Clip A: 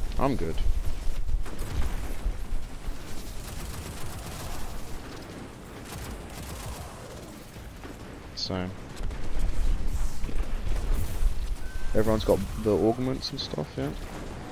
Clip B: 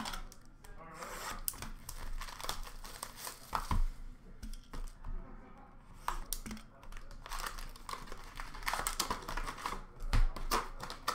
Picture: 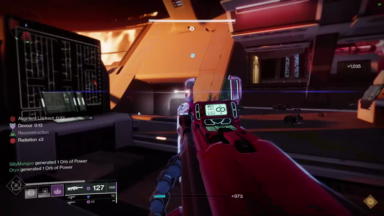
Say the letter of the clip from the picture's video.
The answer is A